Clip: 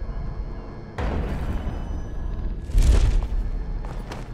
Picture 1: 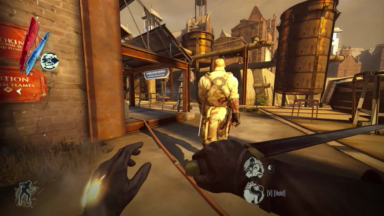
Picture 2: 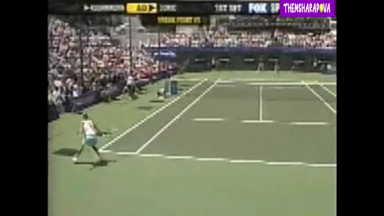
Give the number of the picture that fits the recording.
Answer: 1